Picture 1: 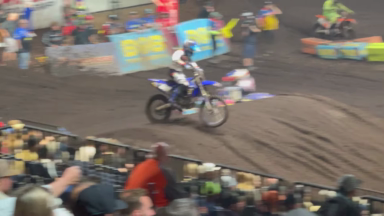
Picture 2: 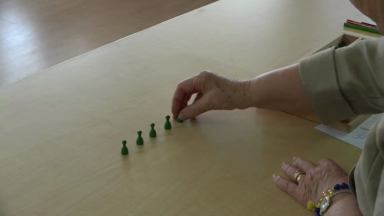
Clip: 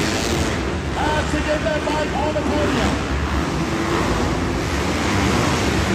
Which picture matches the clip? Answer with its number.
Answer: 1